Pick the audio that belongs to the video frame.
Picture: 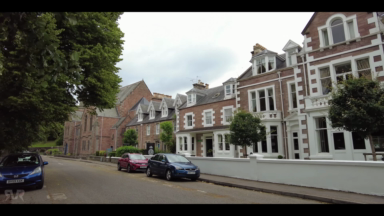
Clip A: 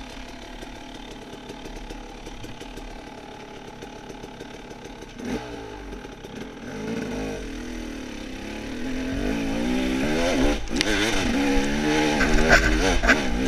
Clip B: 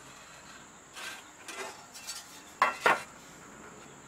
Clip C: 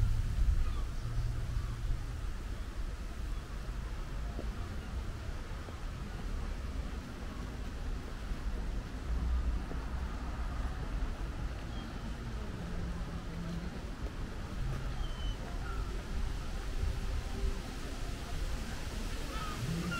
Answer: C